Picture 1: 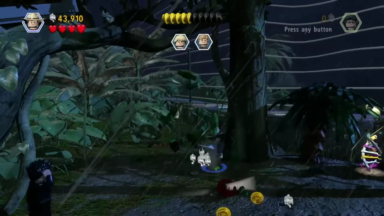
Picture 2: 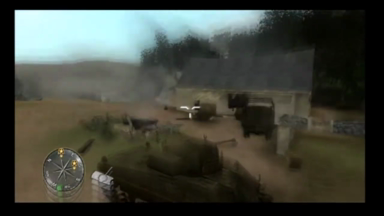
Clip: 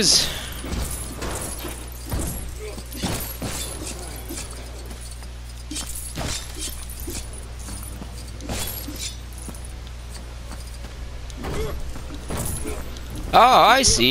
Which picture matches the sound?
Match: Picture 1